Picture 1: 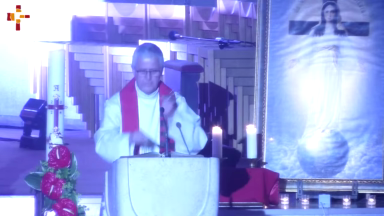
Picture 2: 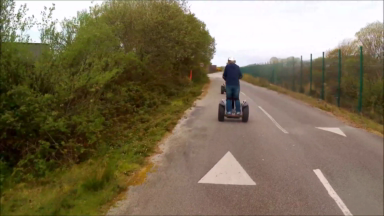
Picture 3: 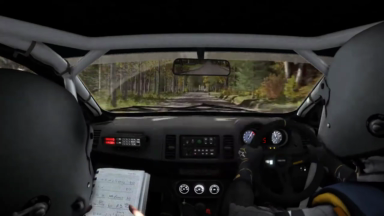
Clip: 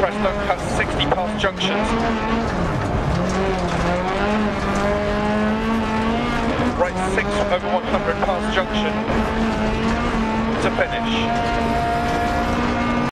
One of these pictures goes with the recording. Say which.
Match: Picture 3